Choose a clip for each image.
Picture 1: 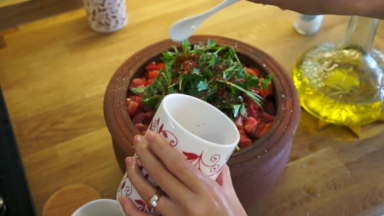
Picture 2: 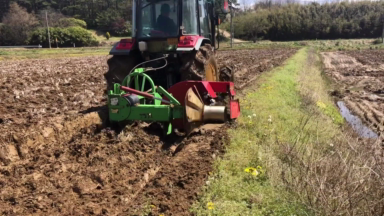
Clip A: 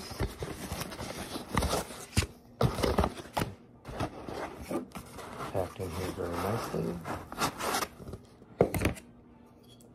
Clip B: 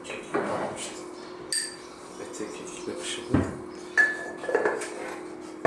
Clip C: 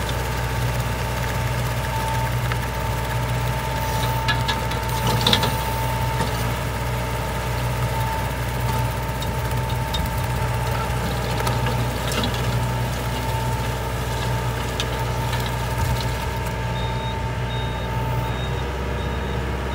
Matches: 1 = B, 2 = C